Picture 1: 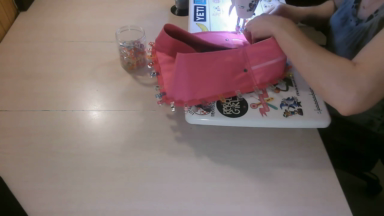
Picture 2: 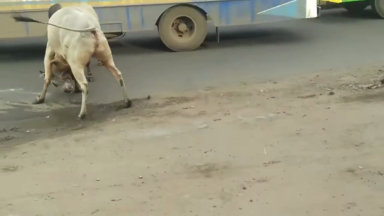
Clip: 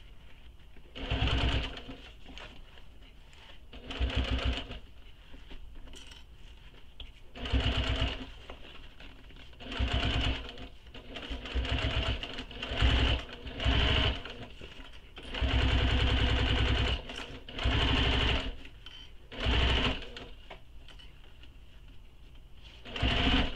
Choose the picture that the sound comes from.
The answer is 1